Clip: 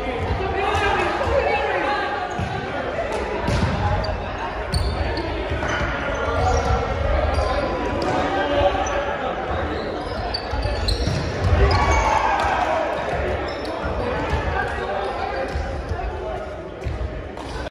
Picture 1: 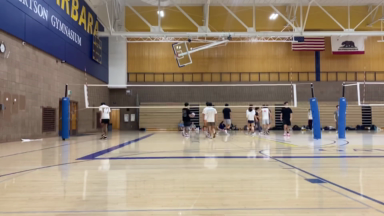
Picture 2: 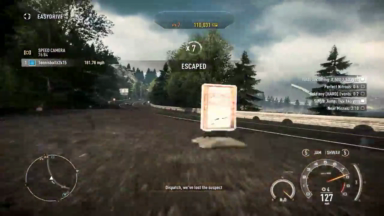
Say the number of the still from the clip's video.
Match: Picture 1